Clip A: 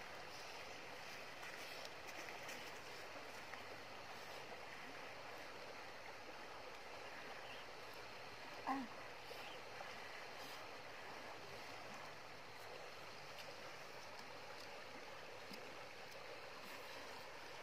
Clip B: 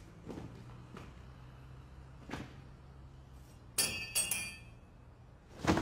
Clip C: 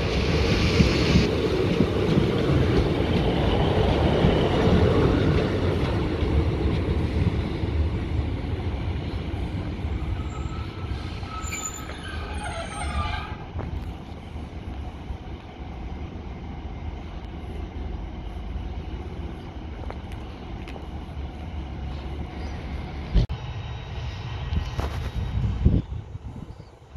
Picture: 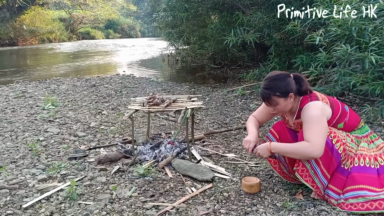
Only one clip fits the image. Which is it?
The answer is A